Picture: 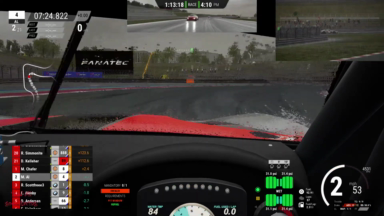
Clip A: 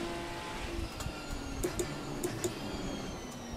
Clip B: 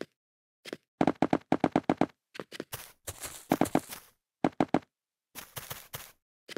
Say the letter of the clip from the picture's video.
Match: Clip A